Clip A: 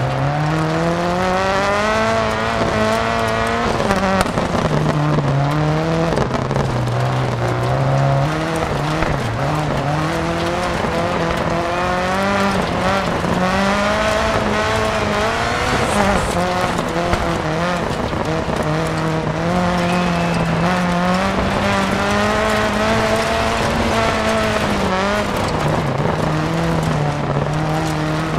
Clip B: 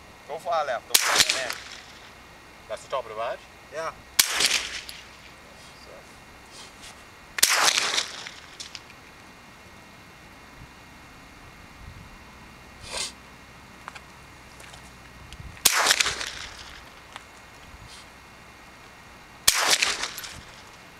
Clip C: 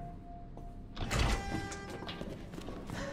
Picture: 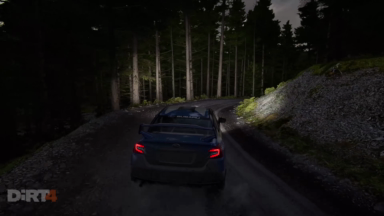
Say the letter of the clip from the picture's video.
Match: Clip A